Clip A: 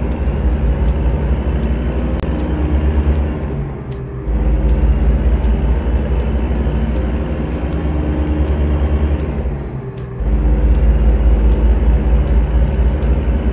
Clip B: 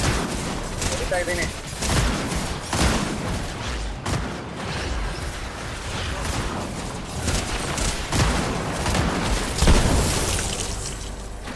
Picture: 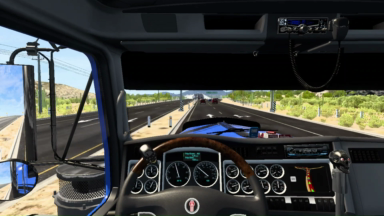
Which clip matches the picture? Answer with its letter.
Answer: A